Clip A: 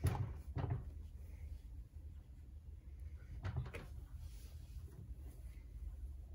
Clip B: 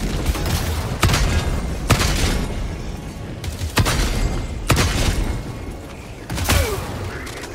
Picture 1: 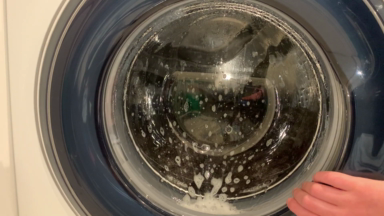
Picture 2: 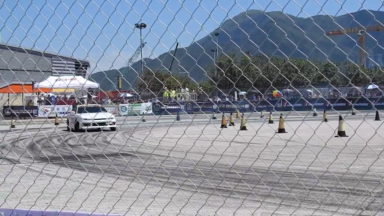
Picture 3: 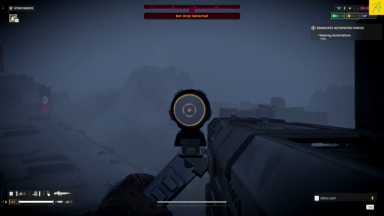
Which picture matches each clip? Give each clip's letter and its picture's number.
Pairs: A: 1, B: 3